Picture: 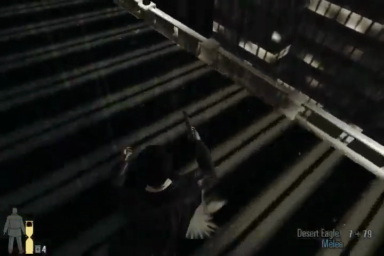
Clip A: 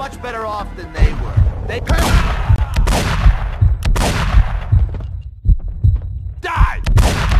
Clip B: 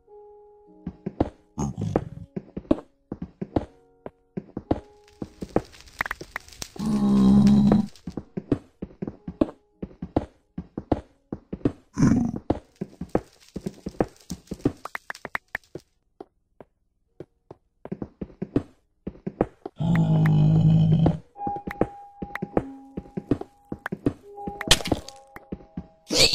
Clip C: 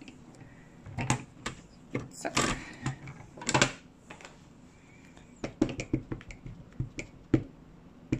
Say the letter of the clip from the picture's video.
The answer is A